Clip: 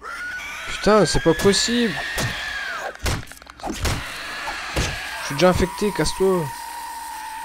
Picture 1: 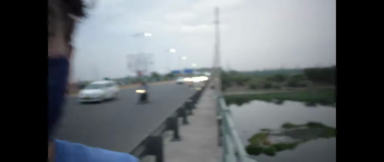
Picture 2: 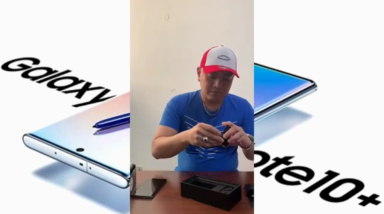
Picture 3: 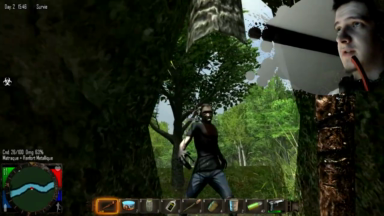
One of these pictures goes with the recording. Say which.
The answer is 3